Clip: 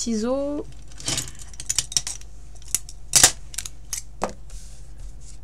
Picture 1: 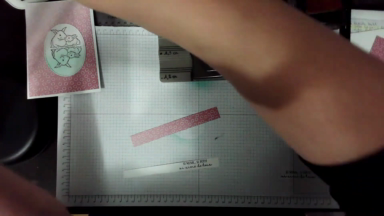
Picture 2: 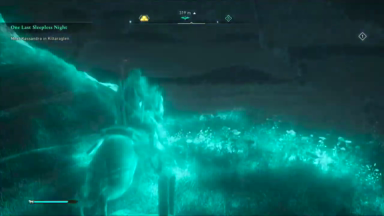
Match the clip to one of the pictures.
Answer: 1